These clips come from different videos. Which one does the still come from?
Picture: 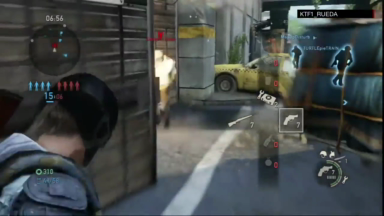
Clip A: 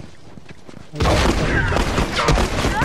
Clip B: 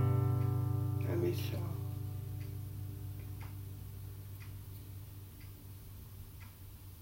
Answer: A